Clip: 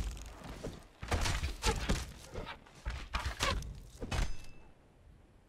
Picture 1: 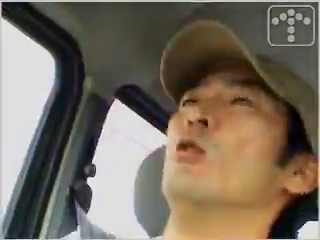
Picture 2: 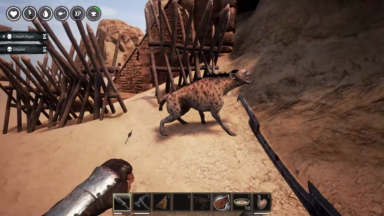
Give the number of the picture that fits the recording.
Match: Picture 2